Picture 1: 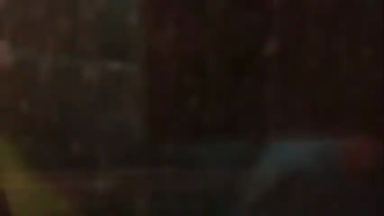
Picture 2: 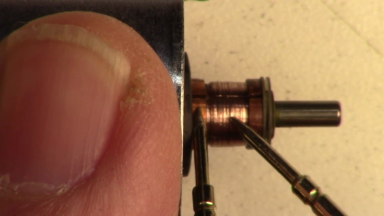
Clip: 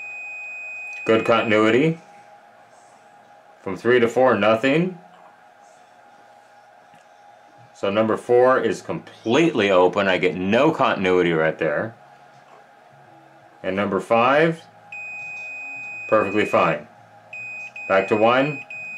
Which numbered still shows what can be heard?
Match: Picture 2